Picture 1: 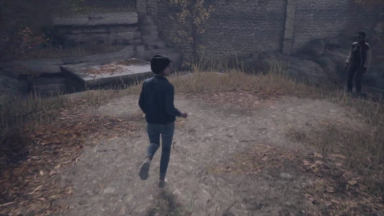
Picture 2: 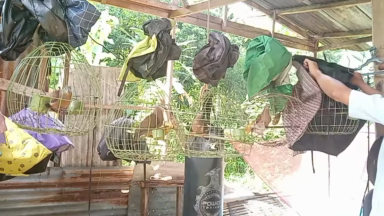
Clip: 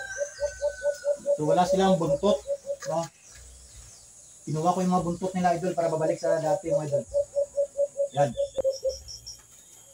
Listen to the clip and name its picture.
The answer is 2